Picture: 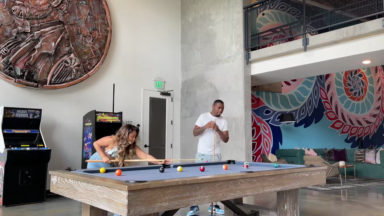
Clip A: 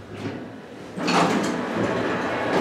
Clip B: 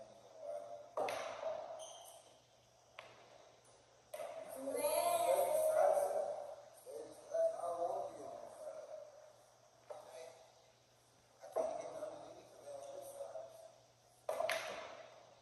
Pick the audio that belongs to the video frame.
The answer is B